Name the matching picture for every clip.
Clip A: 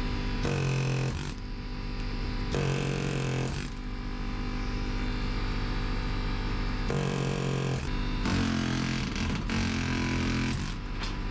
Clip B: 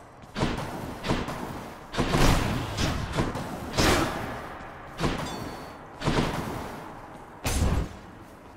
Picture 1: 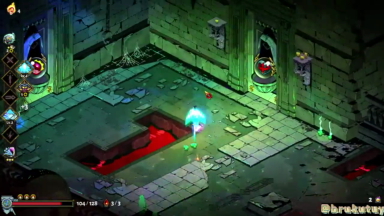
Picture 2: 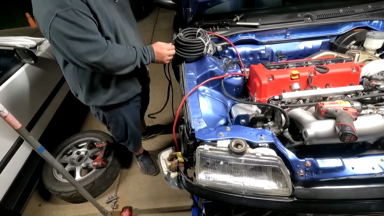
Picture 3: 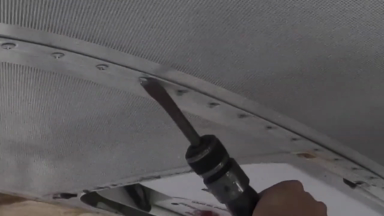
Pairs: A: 3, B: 1